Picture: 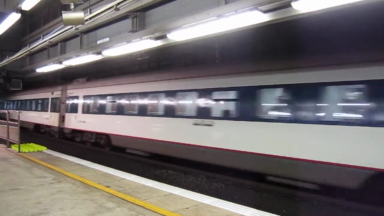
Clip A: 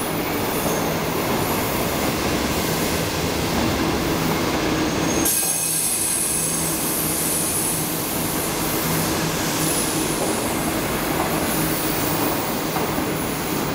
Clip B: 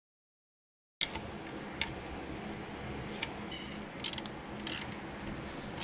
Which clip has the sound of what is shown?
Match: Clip A